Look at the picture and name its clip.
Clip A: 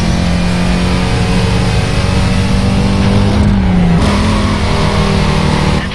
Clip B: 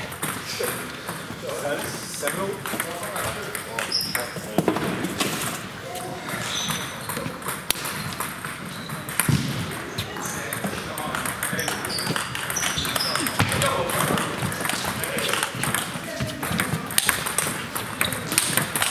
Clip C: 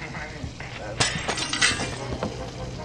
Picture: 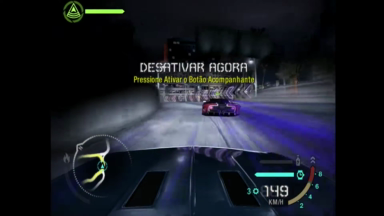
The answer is A